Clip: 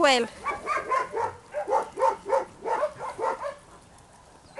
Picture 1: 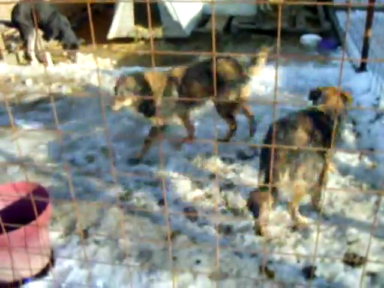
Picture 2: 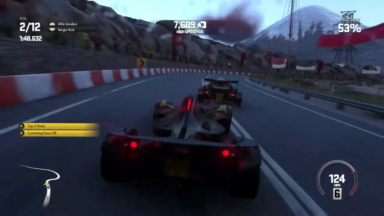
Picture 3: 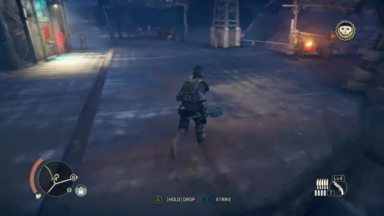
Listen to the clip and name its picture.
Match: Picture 1